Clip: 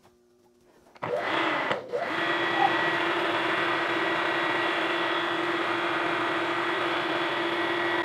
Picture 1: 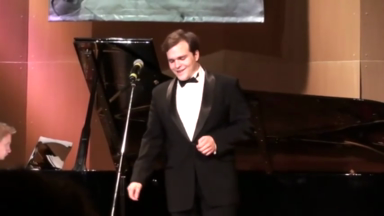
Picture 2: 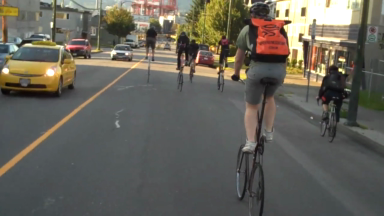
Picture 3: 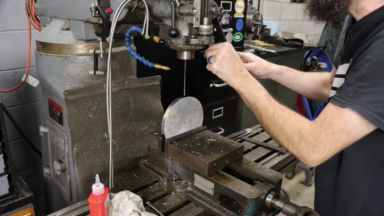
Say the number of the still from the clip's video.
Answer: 3